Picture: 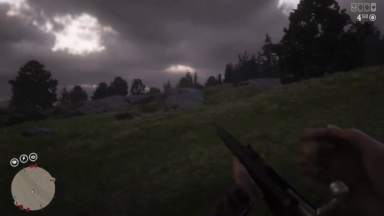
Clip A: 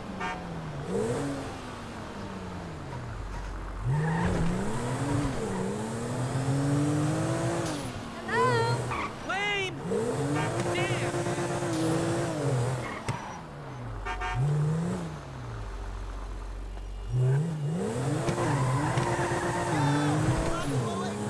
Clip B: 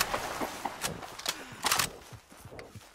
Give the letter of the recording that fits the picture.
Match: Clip B